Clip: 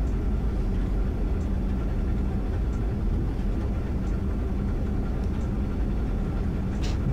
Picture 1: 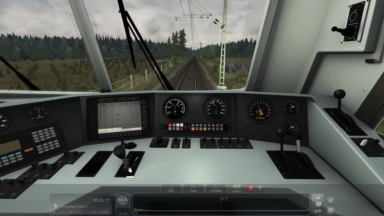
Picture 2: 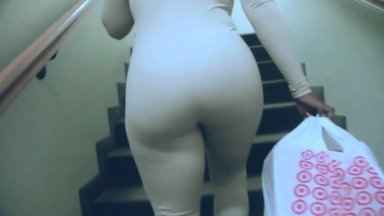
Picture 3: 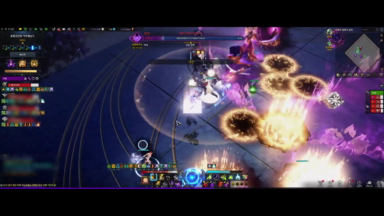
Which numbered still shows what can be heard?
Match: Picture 1